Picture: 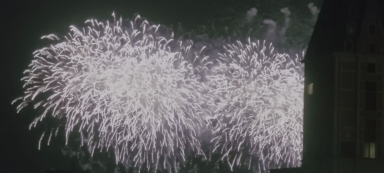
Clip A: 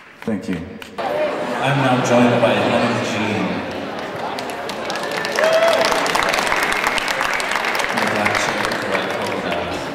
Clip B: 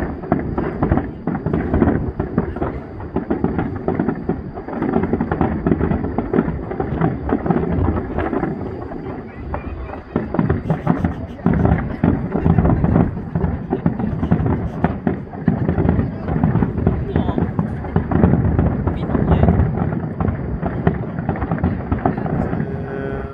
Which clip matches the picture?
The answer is B